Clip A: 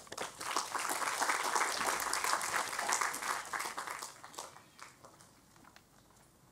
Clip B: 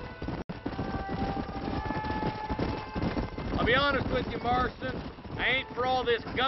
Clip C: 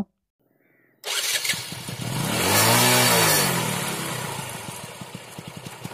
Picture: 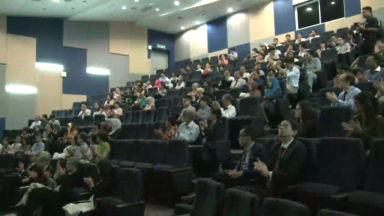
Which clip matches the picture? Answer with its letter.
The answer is A